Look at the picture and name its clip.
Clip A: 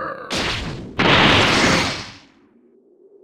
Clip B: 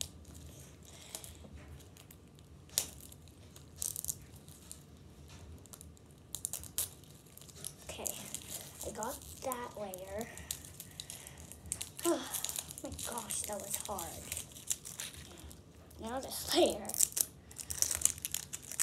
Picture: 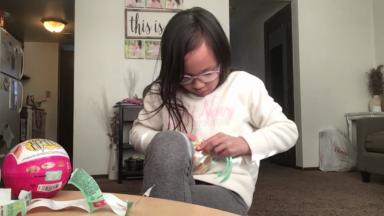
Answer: B